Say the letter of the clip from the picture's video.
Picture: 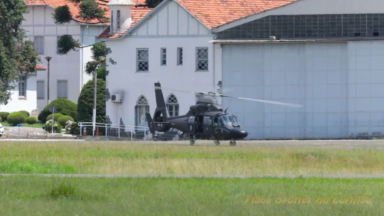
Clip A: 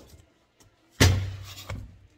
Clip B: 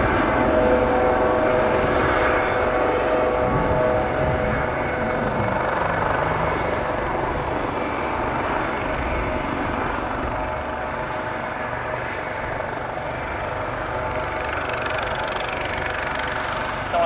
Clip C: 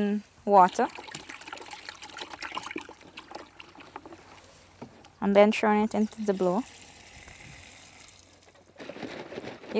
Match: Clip B